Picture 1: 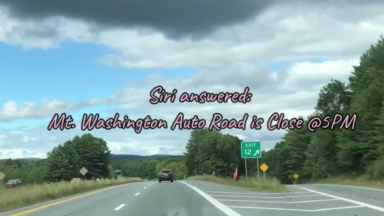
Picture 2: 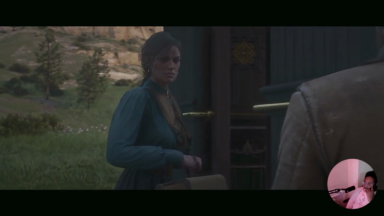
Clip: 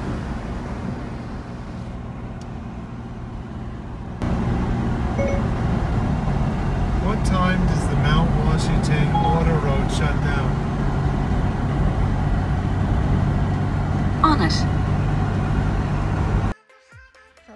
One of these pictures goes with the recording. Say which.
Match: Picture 1